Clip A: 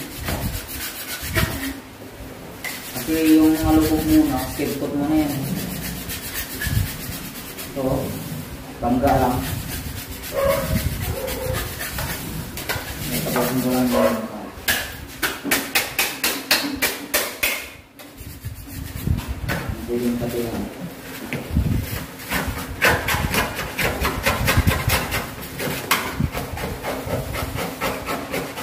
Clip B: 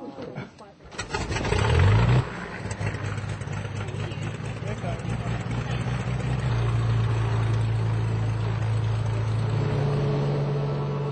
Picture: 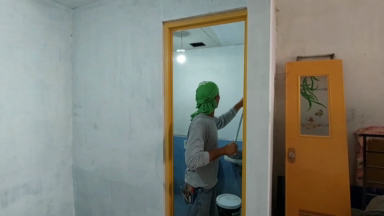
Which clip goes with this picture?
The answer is A